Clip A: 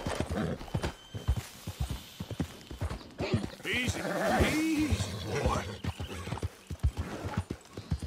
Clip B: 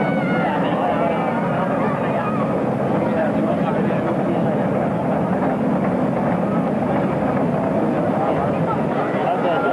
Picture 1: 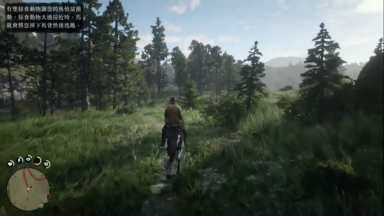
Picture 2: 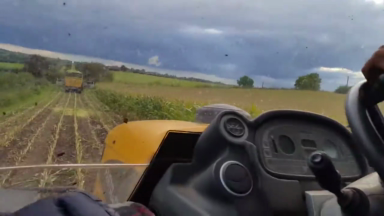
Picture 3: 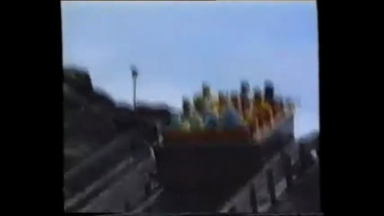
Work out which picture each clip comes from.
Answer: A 1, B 3